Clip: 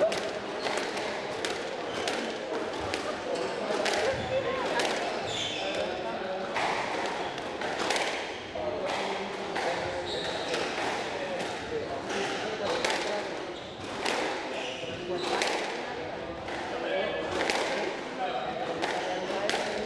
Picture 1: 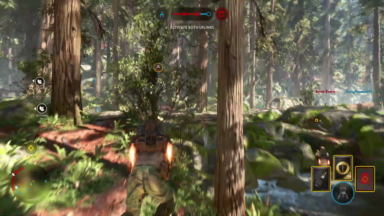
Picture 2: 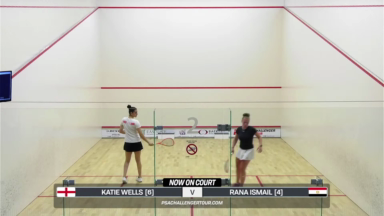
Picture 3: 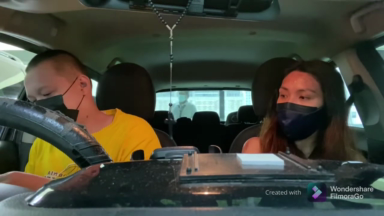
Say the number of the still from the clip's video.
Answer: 2